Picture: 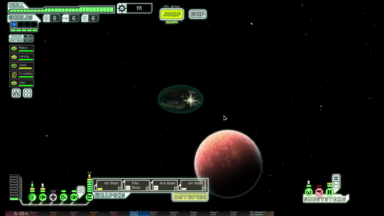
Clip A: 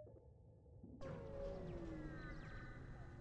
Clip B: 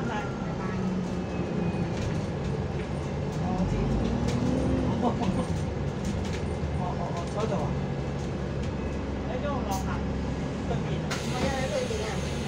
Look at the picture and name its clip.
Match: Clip A